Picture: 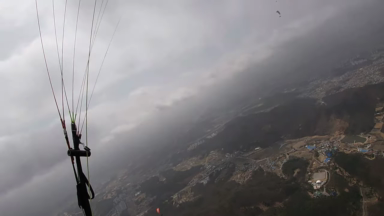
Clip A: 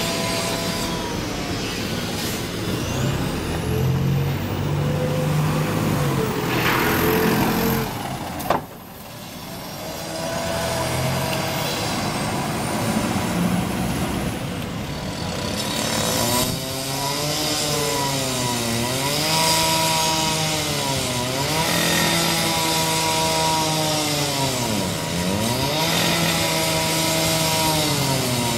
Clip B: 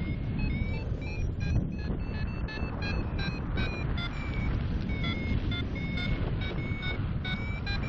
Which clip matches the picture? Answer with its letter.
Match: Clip B